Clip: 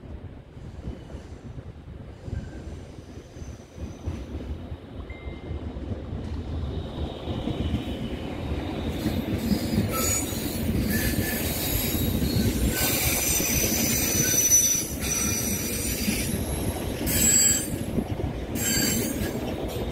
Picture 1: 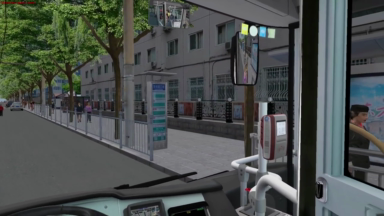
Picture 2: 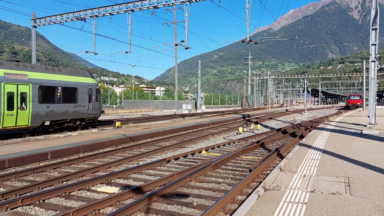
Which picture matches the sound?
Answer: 2